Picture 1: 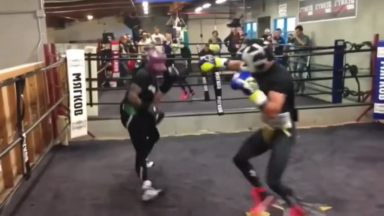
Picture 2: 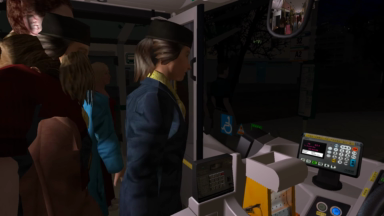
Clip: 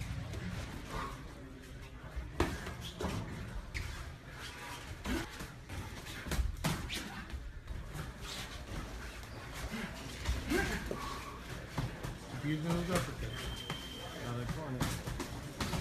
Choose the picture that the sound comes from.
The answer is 1